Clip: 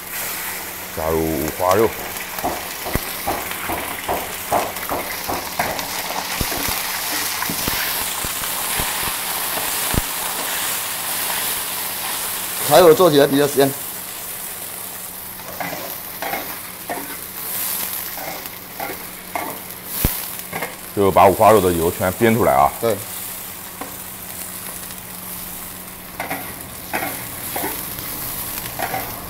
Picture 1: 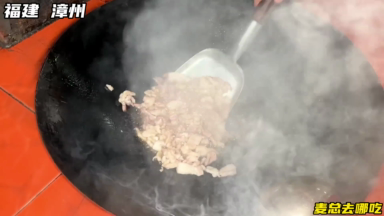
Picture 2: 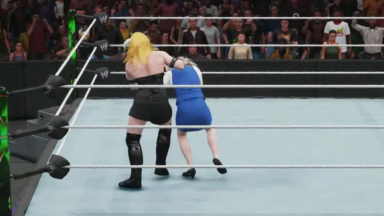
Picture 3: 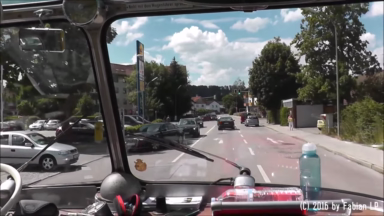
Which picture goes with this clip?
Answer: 1